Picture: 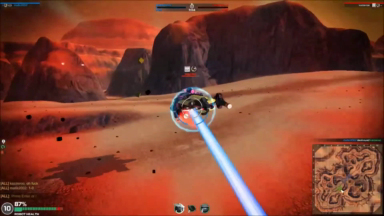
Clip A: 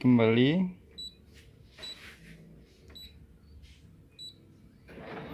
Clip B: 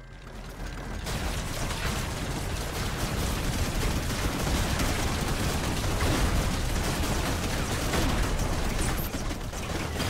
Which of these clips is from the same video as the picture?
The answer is B